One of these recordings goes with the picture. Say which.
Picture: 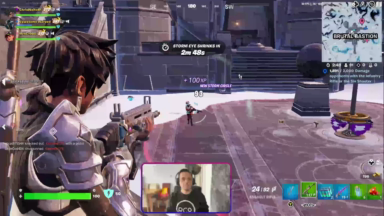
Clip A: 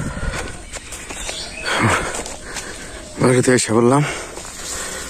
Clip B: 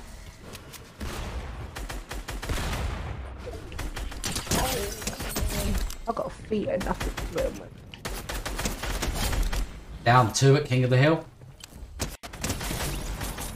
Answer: B